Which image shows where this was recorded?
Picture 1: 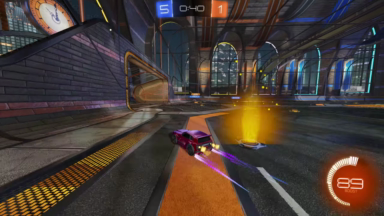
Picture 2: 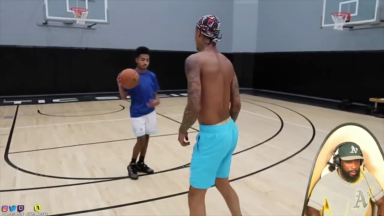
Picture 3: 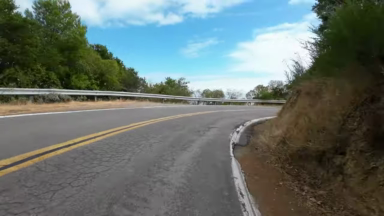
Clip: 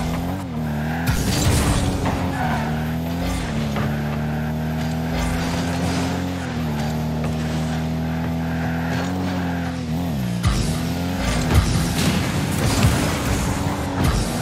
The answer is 1